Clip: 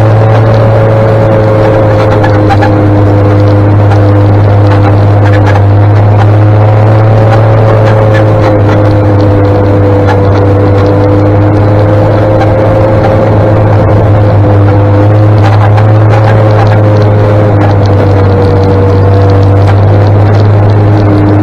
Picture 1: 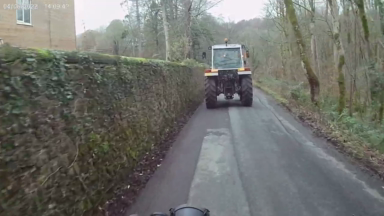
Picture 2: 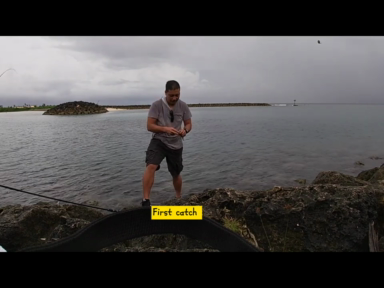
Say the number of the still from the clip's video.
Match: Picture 1